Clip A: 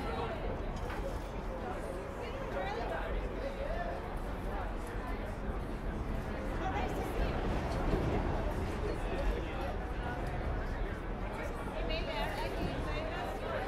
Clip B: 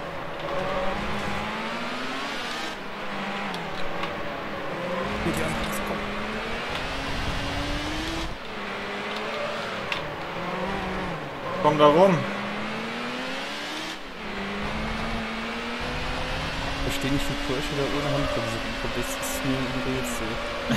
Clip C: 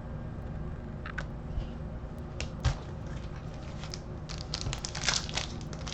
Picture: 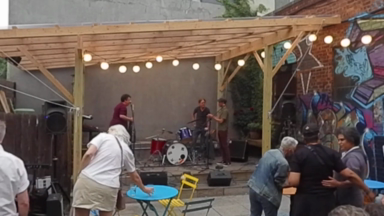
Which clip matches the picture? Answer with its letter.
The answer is A